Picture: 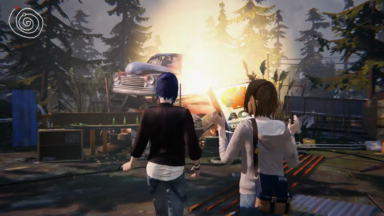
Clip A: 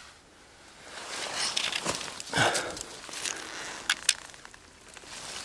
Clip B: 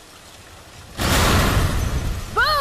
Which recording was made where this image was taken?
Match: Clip B